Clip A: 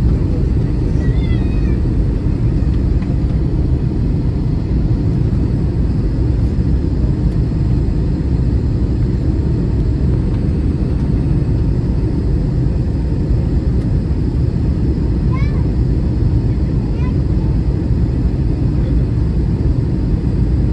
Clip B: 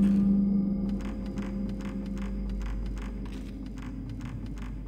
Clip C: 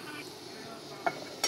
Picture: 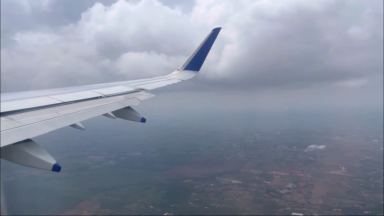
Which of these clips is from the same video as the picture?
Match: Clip A